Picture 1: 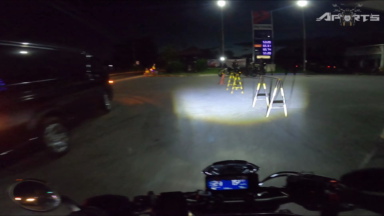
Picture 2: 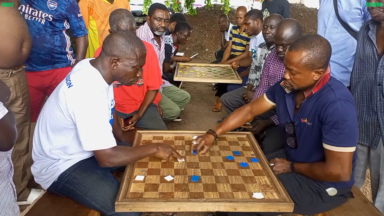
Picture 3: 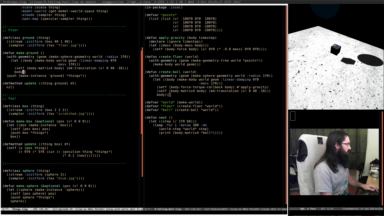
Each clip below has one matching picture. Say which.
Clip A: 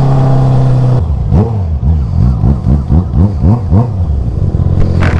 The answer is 1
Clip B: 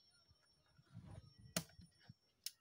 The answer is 2